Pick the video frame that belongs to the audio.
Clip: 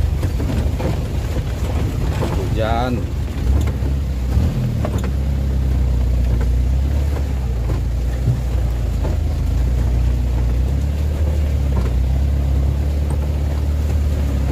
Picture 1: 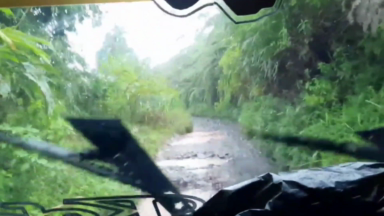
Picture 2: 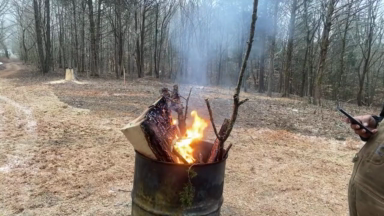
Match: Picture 1